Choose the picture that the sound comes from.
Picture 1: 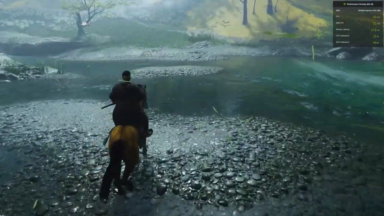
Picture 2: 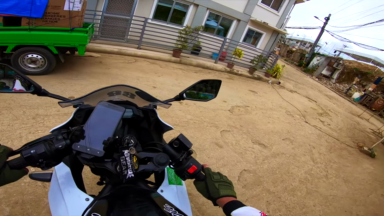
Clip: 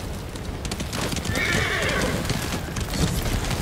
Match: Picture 1